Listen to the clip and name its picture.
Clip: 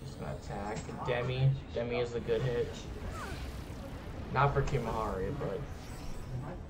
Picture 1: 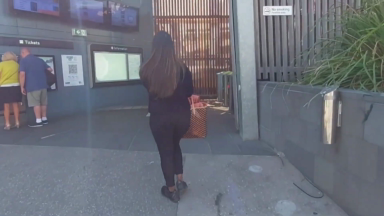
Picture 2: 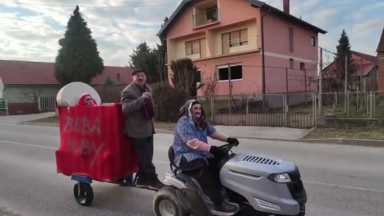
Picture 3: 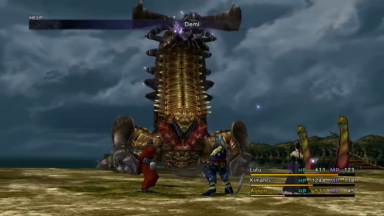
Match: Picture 3